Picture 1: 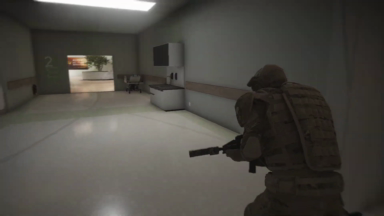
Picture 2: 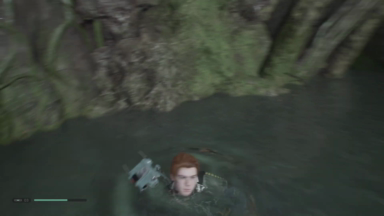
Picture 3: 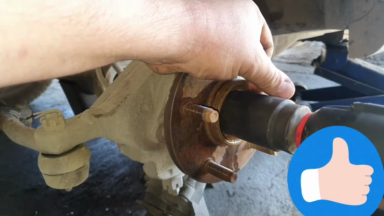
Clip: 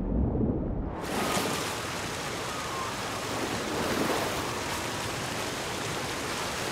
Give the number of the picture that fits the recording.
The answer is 2